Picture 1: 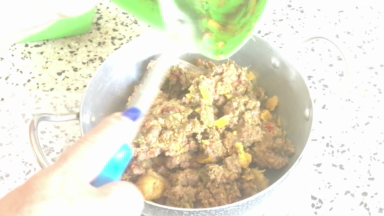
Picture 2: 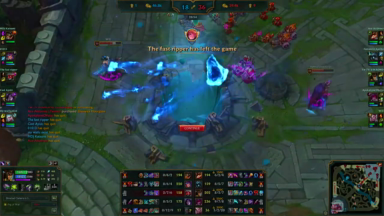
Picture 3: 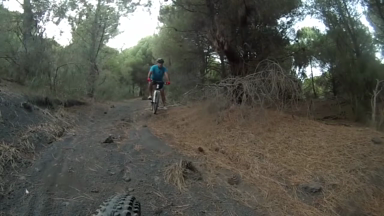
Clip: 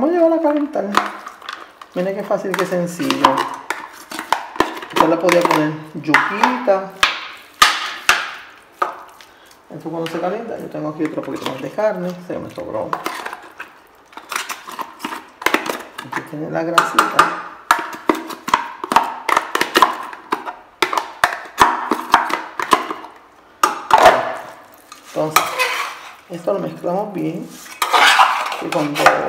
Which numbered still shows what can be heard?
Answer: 1